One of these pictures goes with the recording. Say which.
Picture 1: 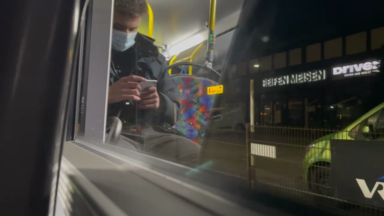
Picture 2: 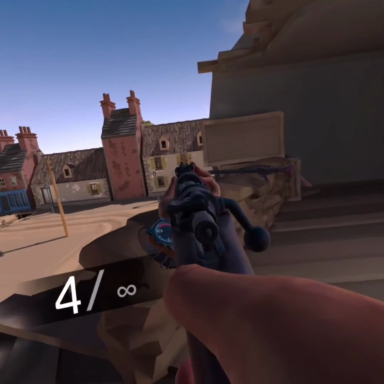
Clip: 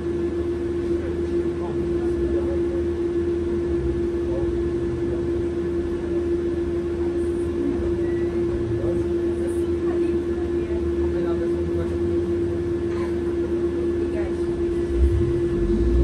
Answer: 1